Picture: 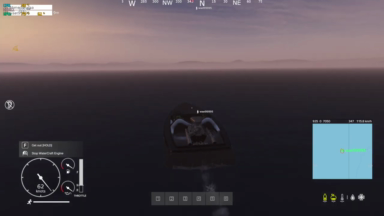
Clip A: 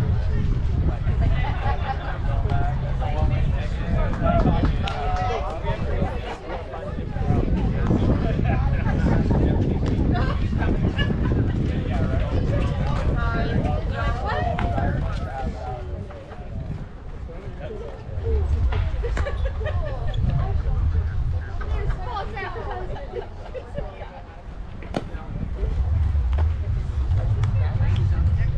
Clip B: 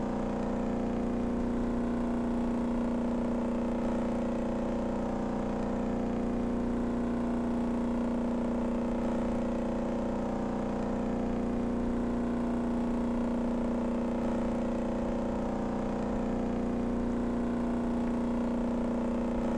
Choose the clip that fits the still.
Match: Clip B